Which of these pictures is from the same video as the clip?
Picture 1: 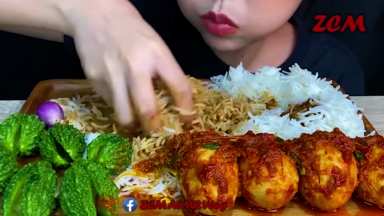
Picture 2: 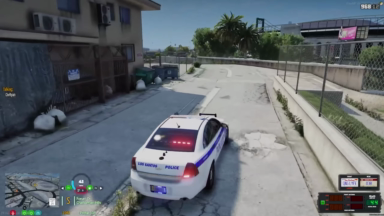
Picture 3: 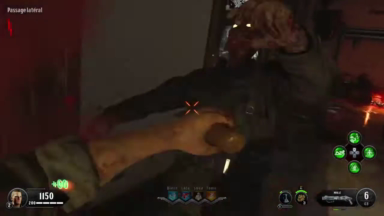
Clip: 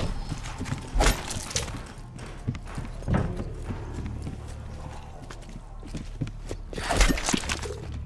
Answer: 3